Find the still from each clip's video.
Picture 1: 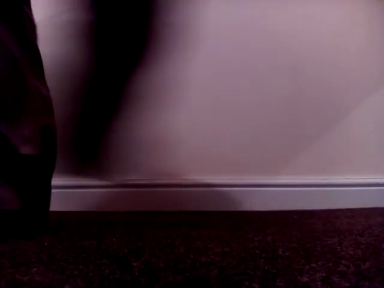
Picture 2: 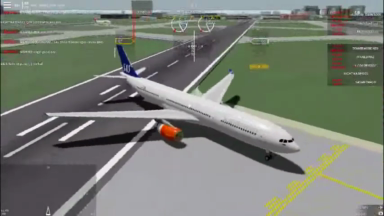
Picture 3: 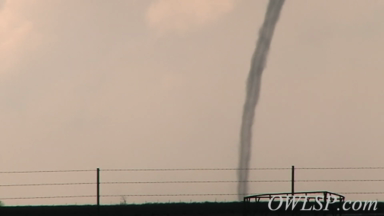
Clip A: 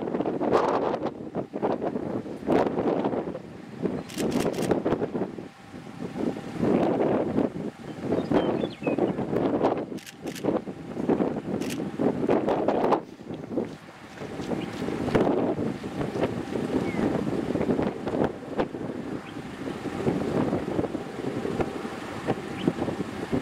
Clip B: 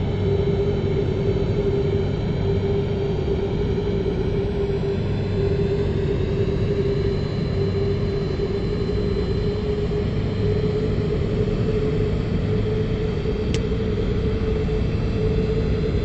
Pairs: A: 3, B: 2